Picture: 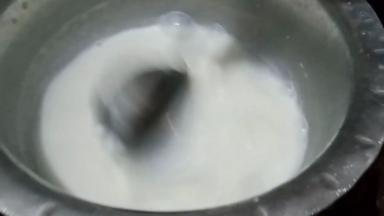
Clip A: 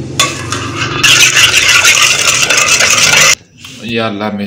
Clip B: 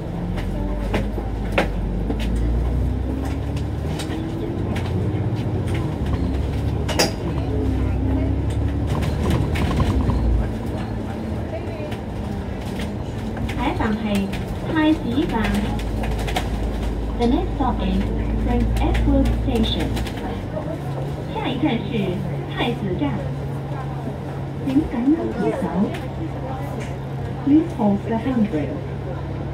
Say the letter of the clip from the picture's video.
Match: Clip A